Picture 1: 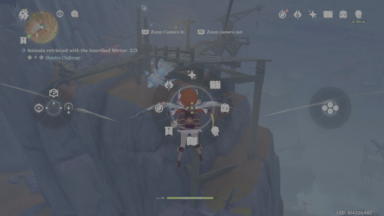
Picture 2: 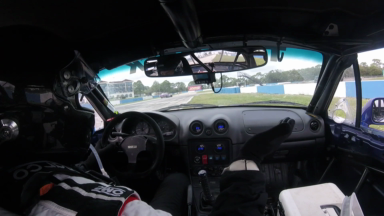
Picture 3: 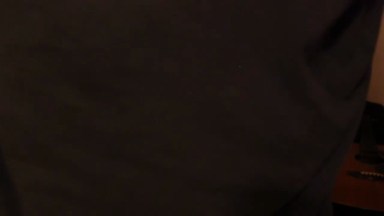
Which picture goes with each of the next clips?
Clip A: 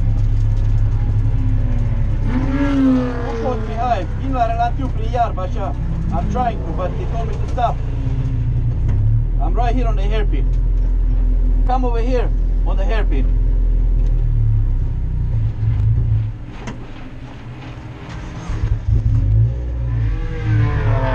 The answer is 2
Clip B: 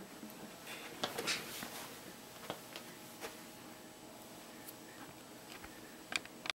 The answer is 3